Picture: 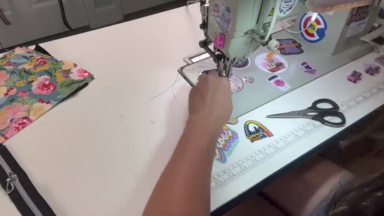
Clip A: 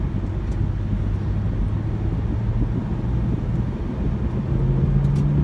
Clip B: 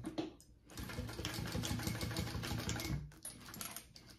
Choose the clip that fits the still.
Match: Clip B